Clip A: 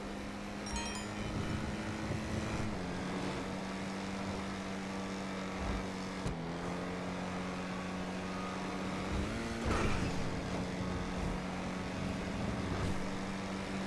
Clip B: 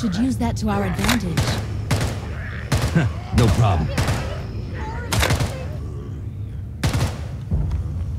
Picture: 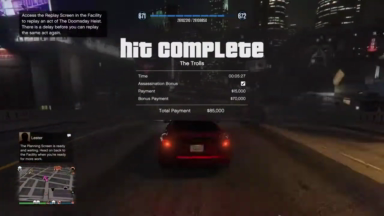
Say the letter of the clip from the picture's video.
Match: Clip A